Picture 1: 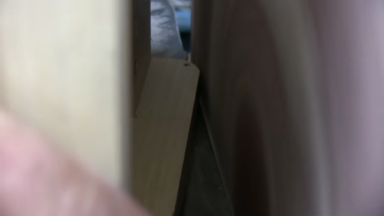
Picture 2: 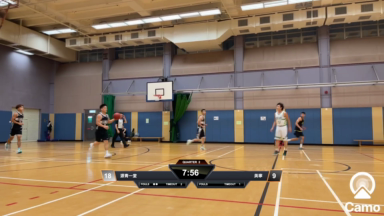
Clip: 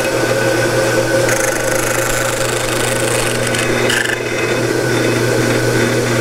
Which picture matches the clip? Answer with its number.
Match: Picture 1